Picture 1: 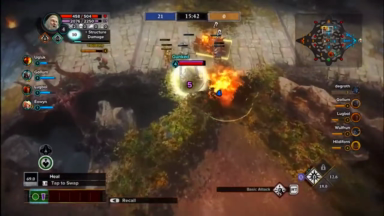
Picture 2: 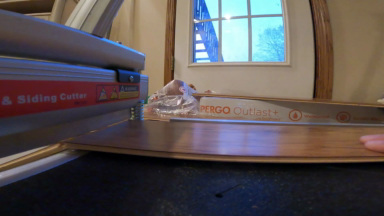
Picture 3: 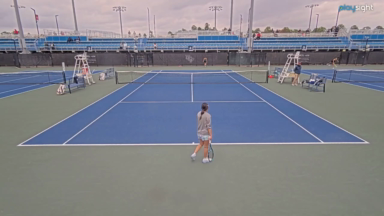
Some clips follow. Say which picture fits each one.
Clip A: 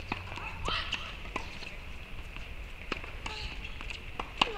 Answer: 3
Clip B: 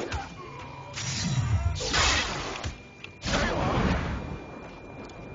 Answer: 1